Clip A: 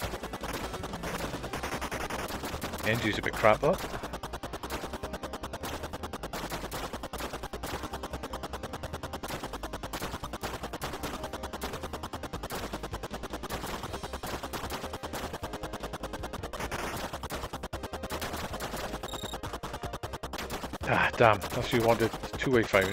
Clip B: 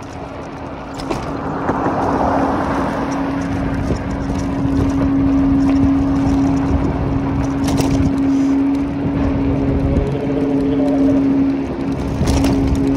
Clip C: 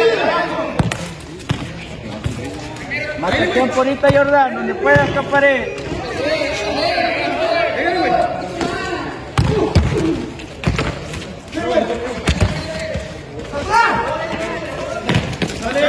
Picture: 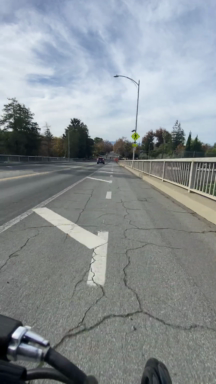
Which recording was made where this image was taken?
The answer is B